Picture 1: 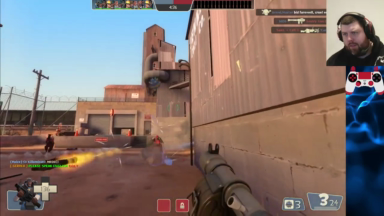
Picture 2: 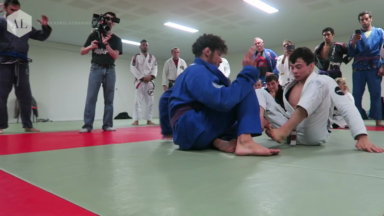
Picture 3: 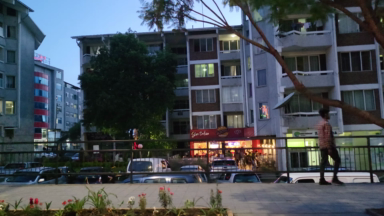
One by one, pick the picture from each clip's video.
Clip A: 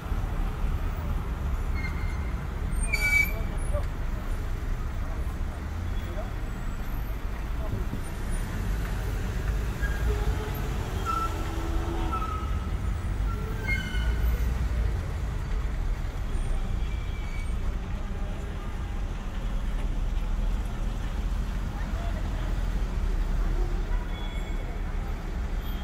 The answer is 3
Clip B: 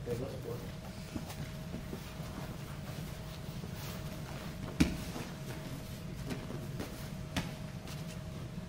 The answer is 2